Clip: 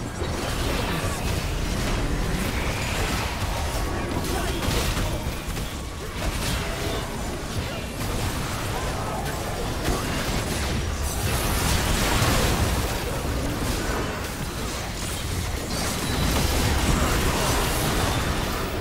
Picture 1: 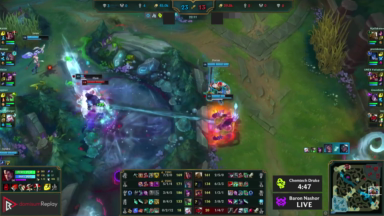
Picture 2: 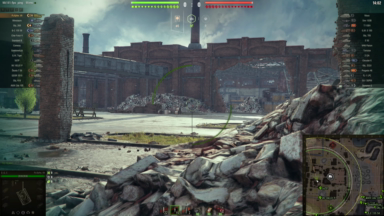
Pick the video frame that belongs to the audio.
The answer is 1